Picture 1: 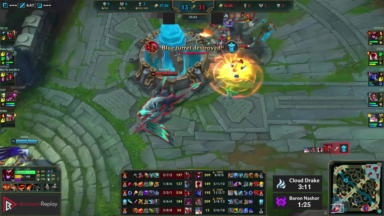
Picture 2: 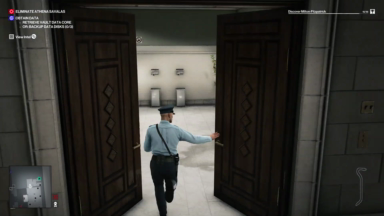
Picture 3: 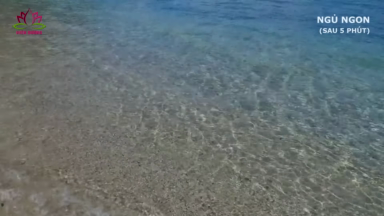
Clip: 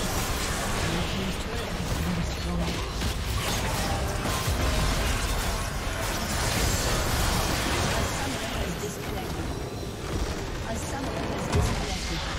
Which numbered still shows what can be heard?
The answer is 1